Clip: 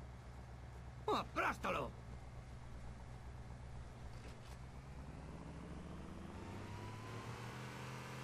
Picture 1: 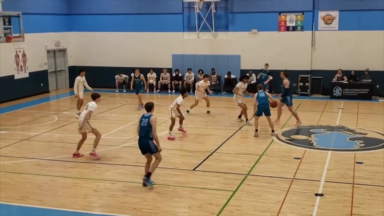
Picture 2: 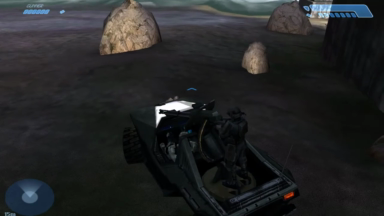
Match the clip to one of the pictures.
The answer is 2